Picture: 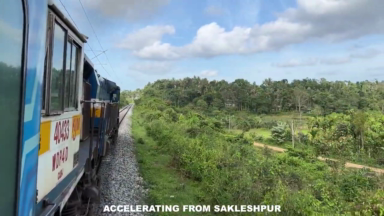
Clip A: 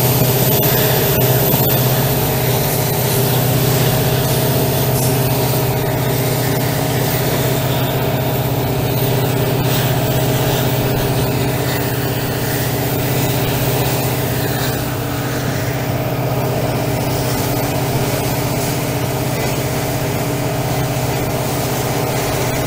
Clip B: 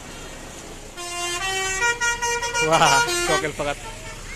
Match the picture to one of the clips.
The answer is A